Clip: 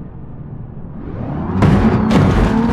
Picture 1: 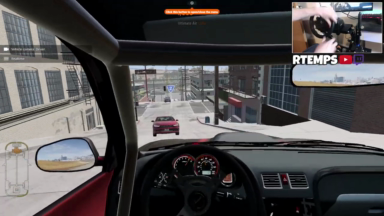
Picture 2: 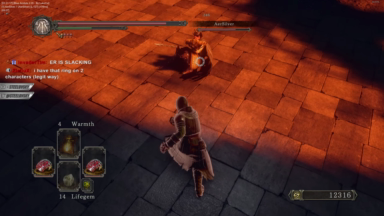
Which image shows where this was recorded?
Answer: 1